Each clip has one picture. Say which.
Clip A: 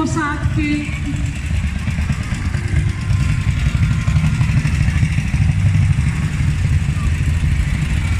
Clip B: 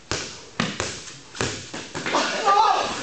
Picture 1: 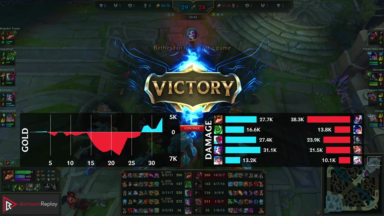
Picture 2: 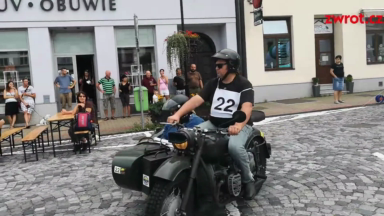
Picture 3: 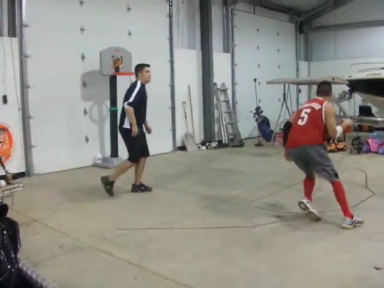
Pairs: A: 2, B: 3